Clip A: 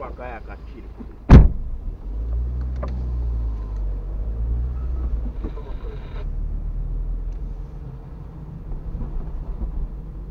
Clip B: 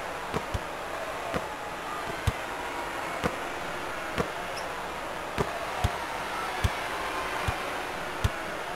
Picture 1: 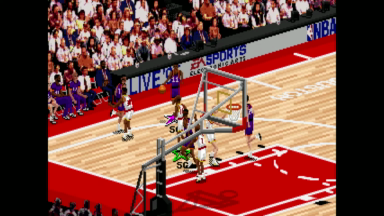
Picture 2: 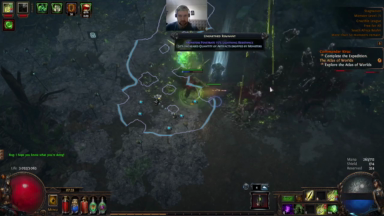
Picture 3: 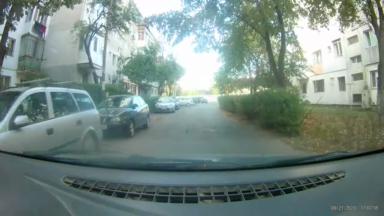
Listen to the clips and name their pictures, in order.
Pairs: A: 3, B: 1